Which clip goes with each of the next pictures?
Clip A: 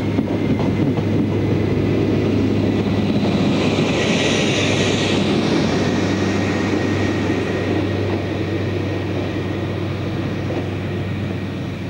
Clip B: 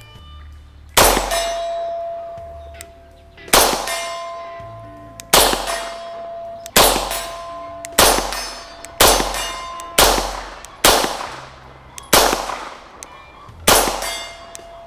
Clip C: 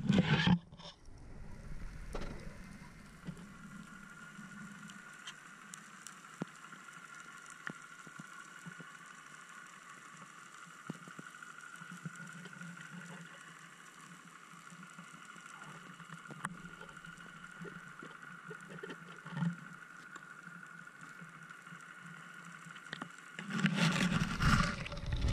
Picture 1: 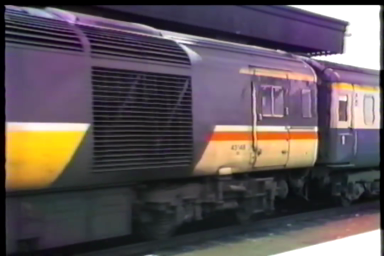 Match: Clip A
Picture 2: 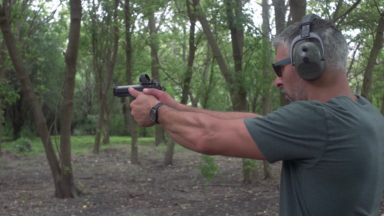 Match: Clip B